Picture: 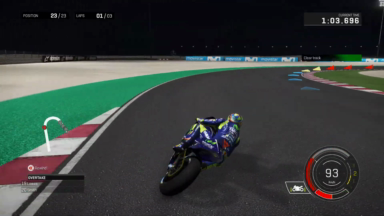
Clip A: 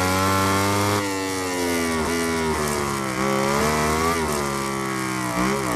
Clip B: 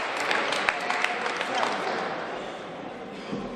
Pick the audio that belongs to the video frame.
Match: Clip A